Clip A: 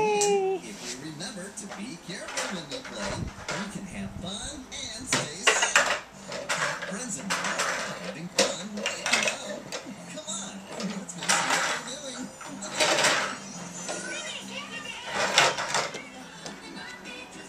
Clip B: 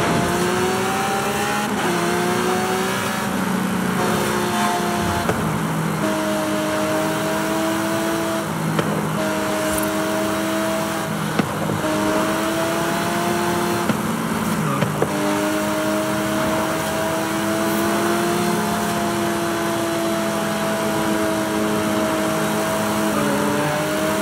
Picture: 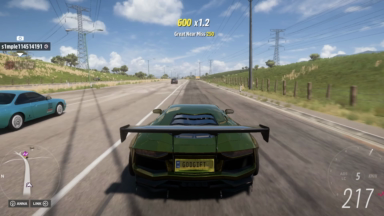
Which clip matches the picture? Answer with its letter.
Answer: B